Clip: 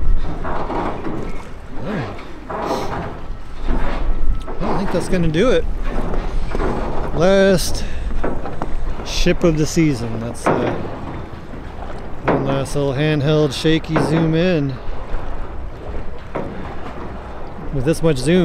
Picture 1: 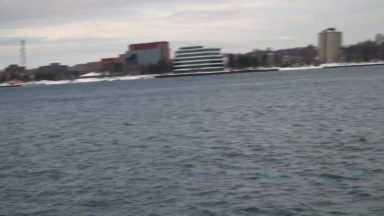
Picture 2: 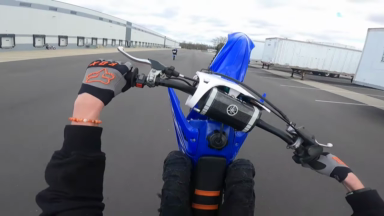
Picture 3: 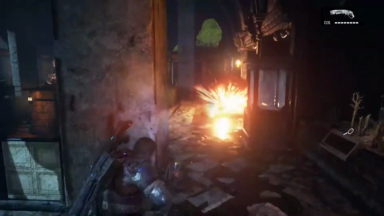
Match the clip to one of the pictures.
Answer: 1